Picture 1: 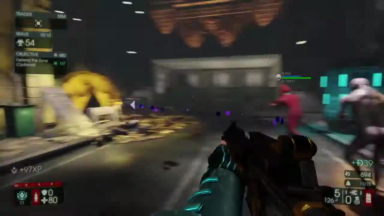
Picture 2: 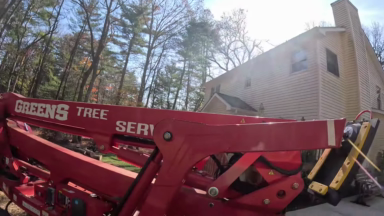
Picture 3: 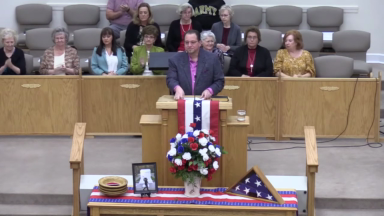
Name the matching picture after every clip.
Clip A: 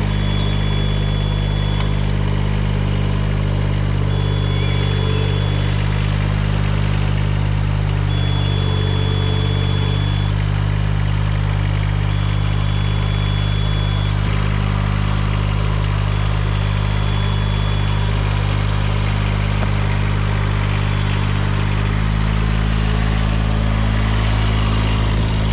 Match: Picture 2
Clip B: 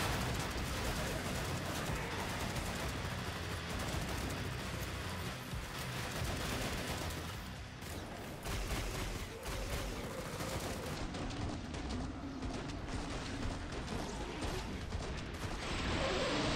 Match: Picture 1